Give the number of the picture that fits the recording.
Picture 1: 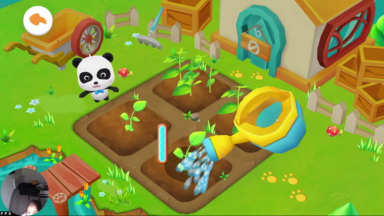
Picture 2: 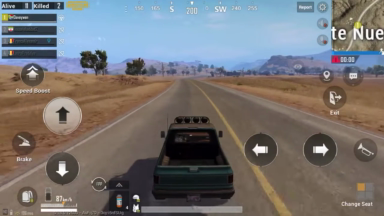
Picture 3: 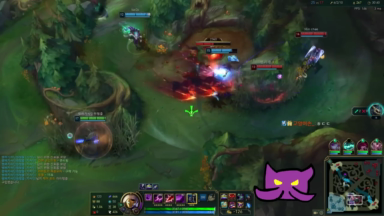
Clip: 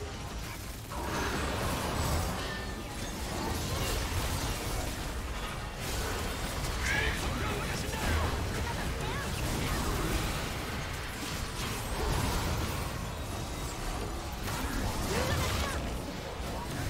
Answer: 3